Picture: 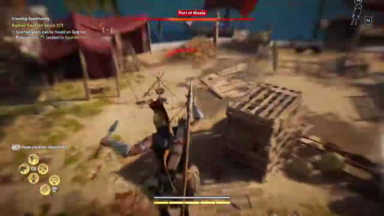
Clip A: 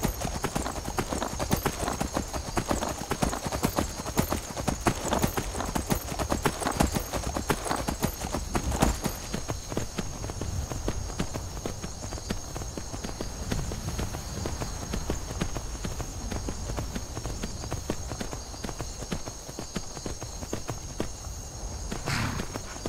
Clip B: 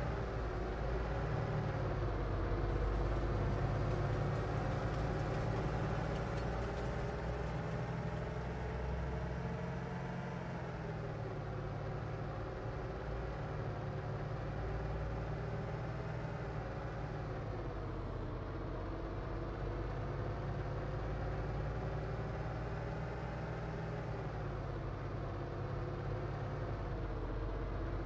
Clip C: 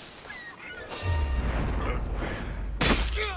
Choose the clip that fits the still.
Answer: C